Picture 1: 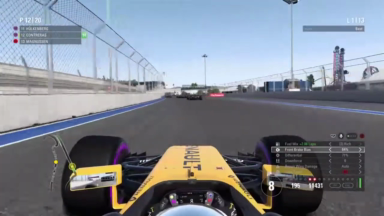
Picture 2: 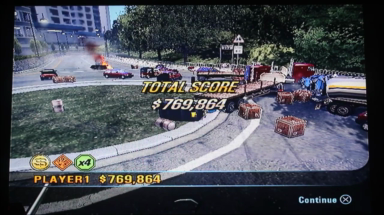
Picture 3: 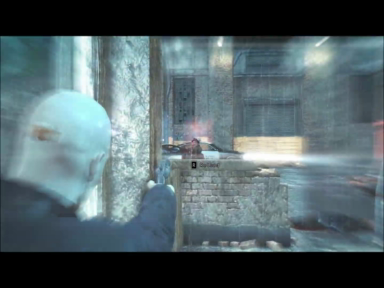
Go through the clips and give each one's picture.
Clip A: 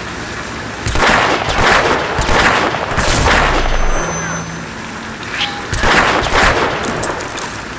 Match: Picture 3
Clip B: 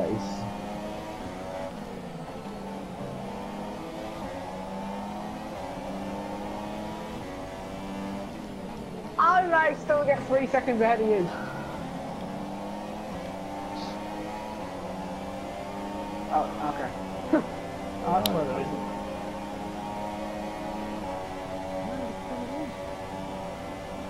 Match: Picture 1